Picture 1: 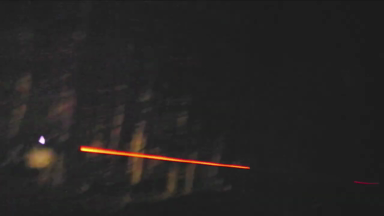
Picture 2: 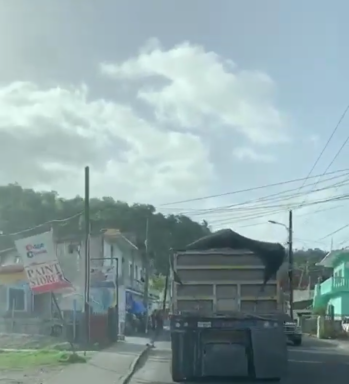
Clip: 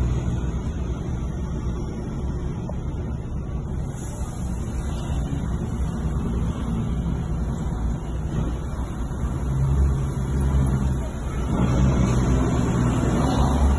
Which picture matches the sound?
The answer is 2